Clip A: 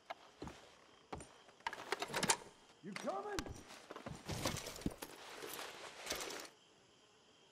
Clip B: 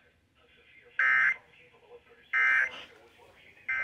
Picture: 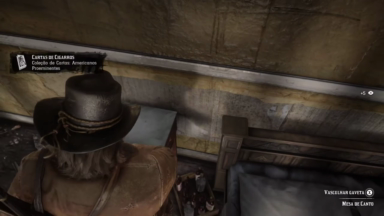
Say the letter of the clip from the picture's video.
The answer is A